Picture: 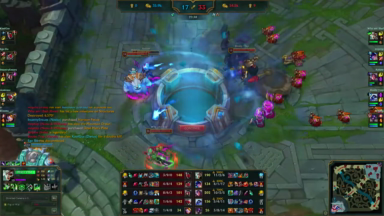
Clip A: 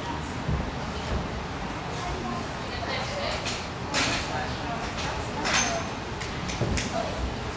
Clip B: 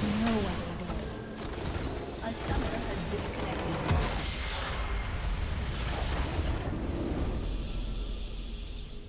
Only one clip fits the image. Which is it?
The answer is B